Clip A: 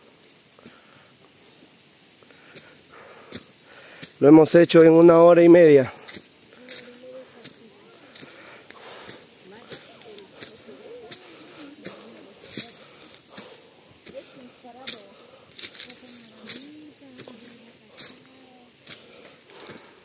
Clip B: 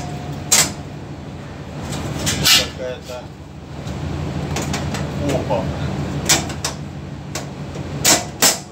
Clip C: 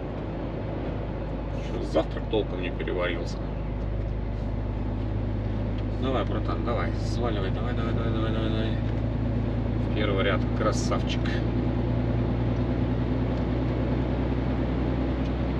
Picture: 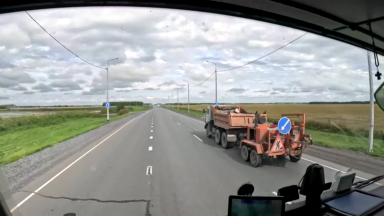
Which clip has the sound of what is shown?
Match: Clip C